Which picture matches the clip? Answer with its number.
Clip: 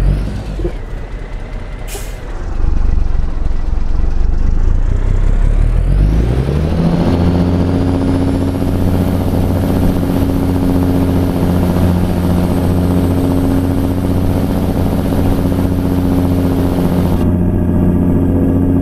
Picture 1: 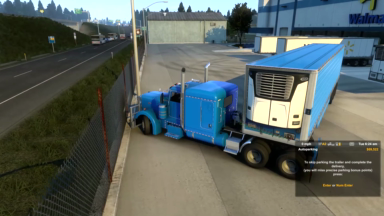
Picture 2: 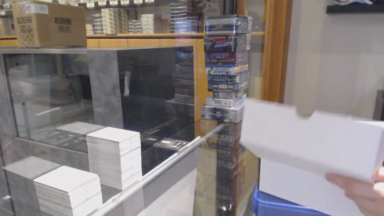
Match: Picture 1